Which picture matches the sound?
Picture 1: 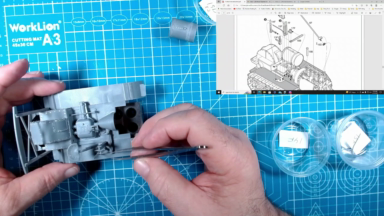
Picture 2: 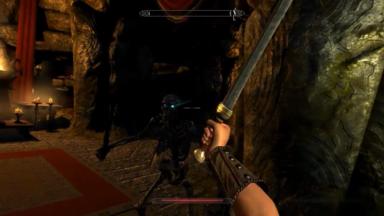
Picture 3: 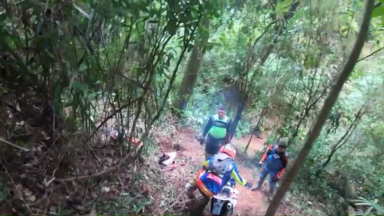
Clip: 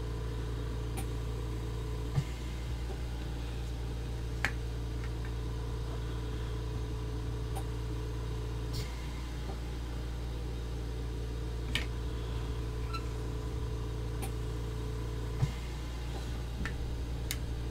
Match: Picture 1